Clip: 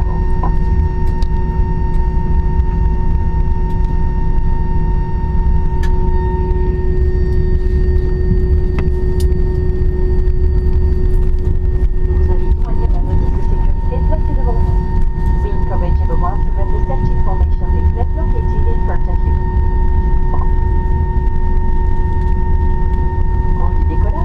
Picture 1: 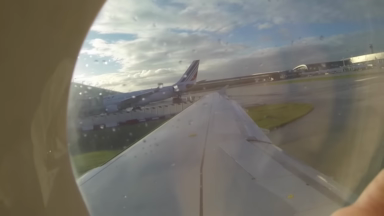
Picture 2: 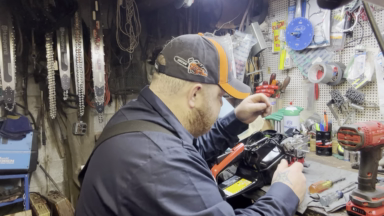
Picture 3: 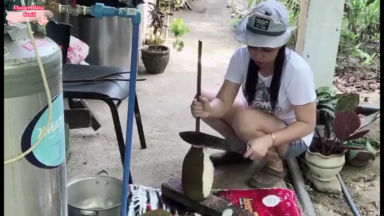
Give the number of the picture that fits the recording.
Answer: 1